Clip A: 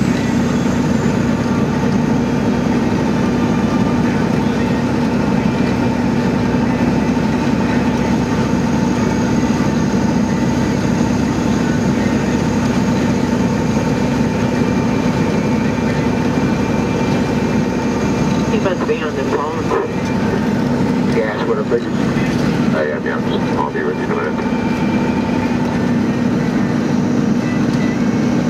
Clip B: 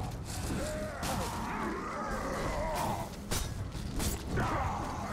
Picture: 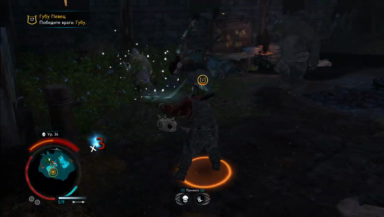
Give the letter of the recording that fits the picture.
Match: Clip B